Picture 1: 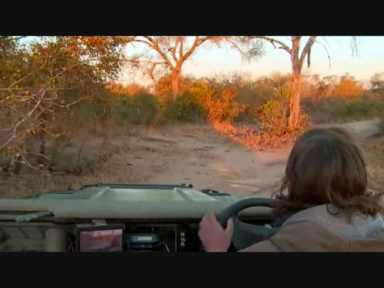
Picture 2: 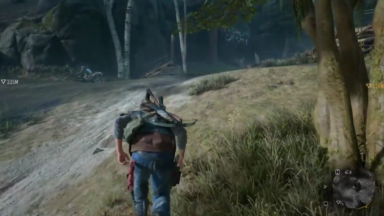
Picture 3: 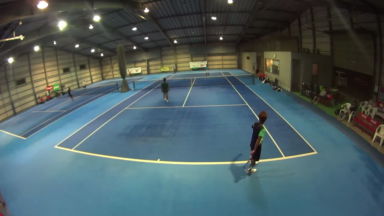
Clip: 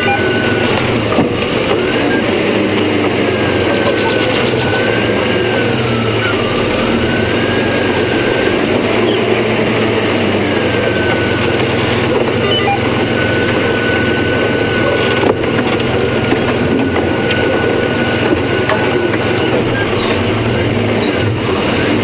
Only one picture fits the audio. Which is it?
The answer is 1